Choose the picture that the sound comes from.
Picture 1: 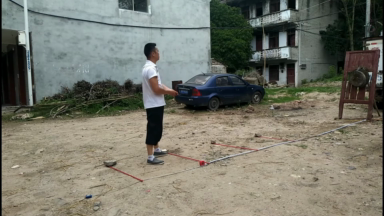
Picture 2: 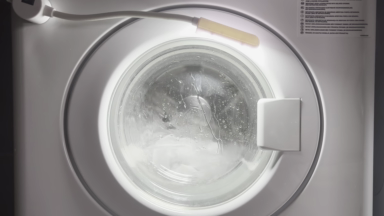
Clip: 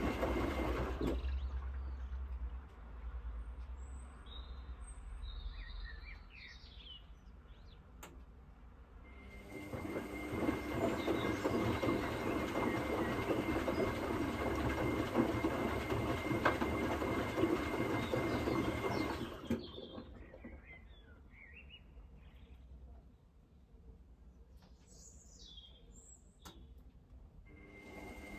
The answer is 2